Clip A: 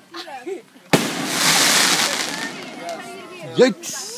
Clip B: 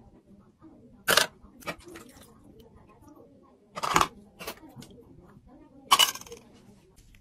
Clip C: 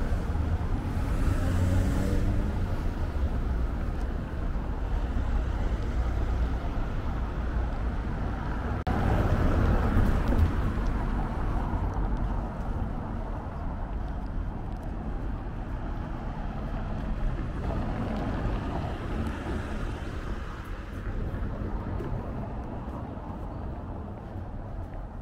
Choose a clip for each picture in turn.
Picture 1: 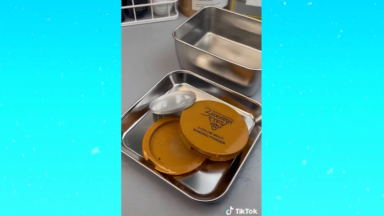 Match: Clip B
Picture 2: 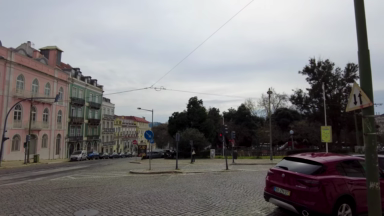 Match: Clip C